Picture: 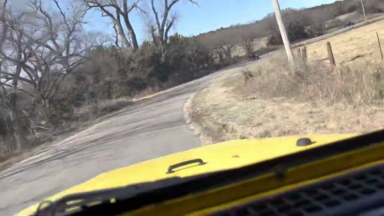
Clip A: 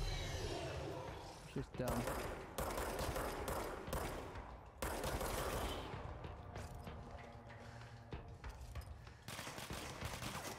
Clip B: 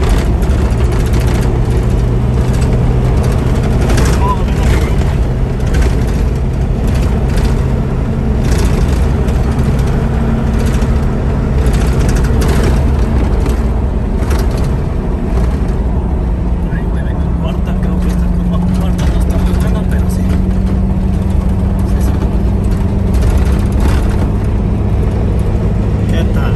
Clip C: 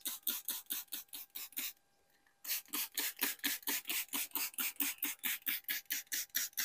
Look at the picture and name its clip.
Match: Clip B